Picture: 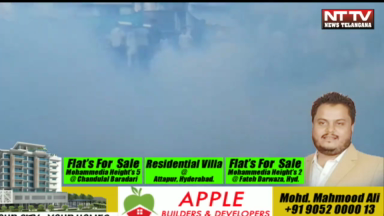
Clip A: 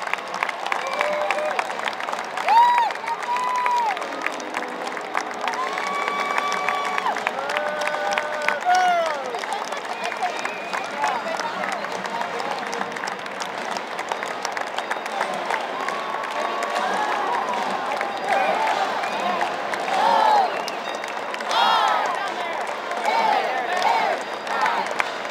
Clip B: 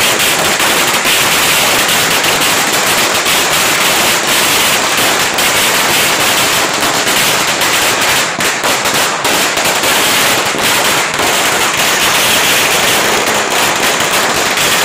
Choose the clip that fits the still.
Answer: B